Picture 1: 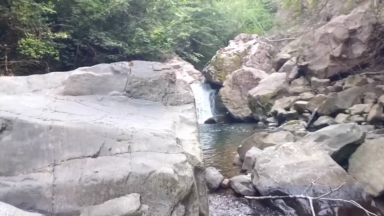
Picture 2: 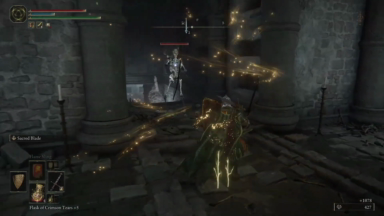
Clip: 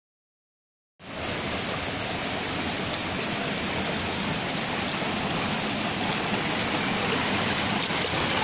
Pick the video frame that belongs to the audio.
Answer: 1